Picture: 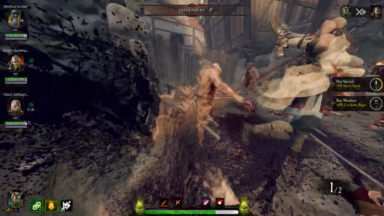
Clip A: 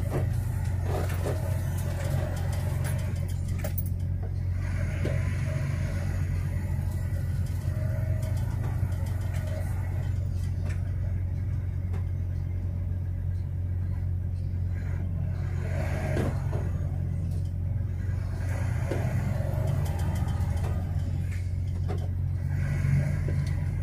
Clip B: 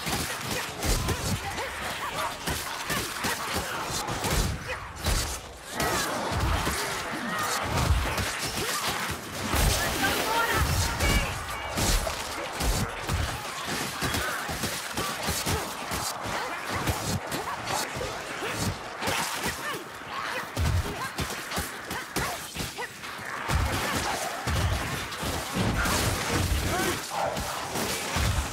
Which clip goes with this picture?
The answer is B